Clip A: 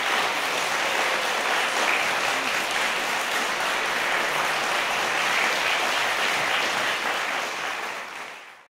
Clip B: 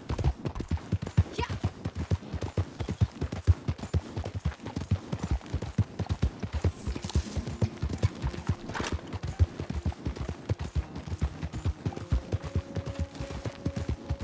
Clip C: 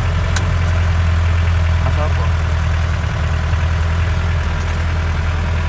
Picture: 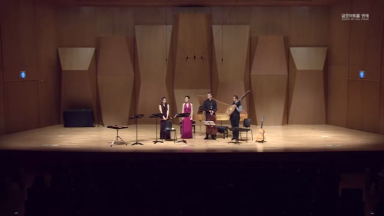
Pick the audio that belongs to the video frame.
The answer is A